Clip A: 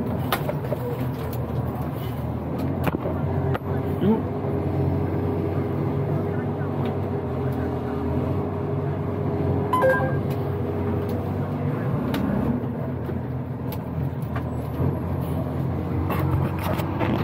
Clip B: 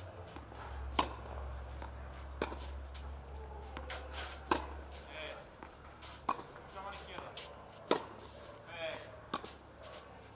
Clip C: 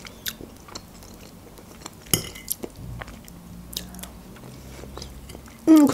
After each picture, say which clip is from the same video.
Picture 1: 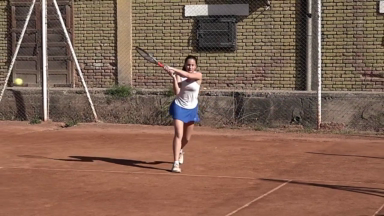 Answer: B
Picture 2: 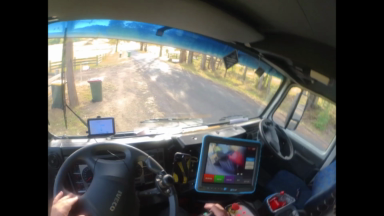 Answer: A